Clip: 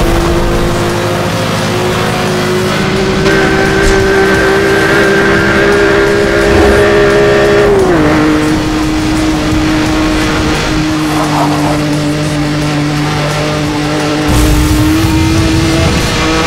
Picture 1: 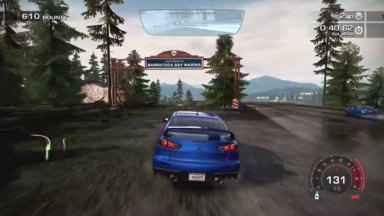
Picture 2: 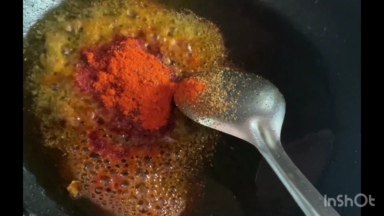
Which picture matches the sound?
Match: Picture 1